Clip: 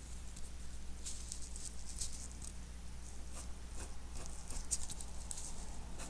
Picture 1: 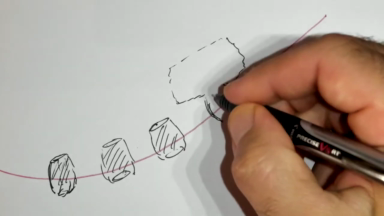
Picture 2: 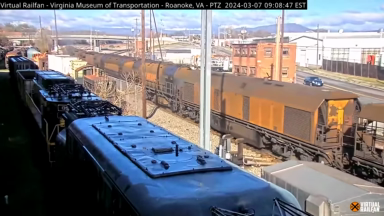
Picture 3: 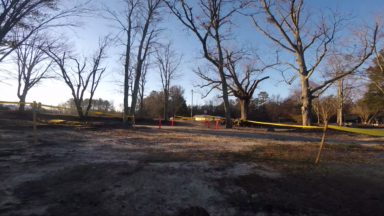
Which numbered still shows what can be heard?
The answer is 1